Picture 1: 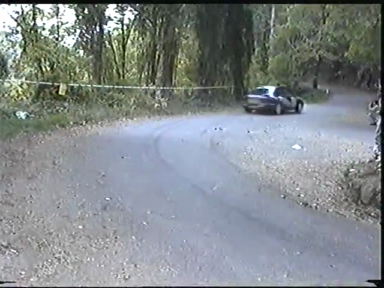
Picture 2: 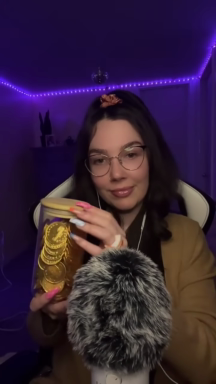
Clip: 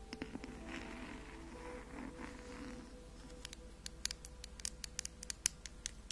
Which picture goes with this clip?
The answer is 2